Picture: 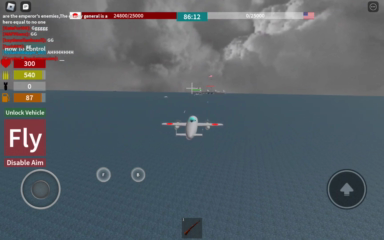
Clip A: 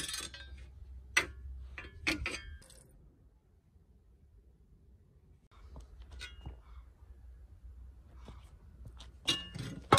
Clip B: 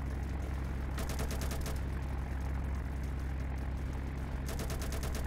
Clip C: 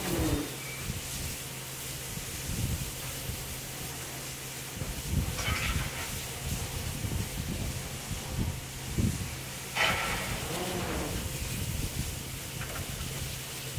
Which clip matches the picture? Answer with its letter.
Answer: B